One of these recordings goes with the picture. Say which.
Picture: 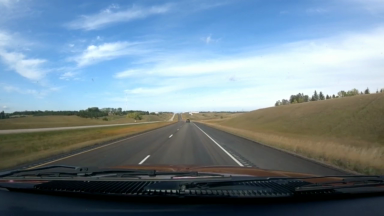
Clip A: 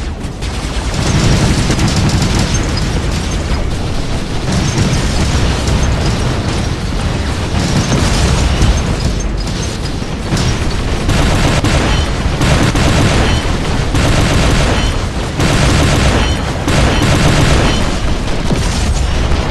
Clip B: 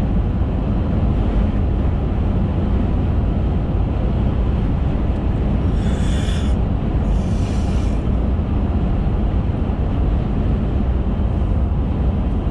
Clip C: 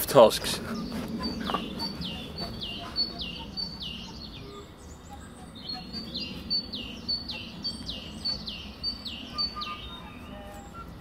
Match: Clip B